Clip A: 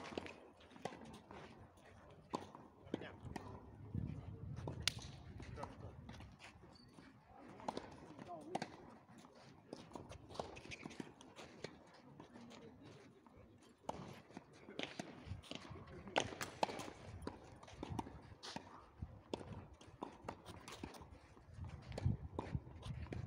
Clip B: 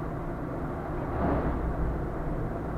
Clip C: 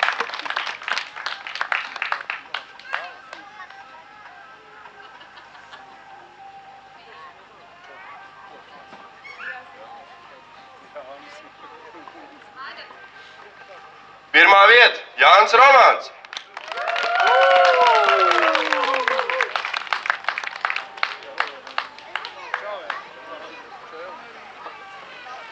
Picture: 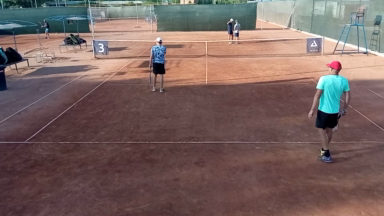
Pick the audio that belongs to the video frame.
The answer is A